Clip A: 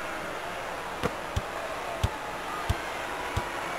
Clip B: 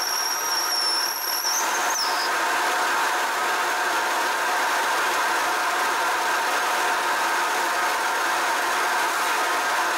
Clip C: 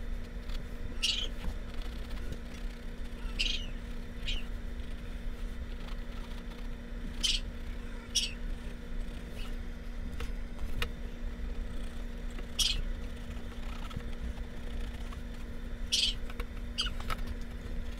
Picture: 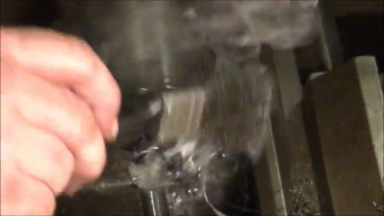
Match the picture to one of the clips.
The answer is B